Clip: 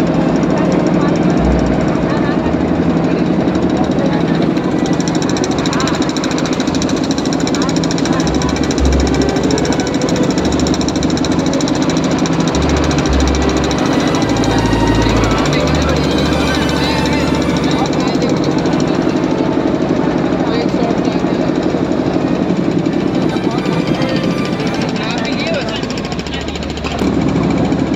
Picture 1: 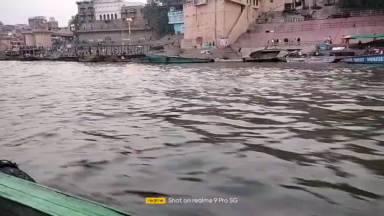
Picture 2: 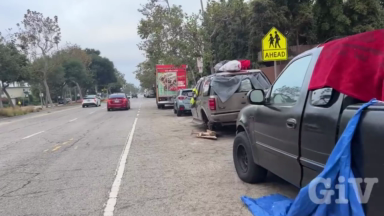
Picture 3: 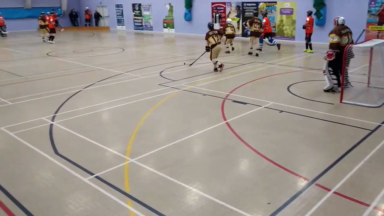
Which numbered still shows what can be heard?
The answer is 1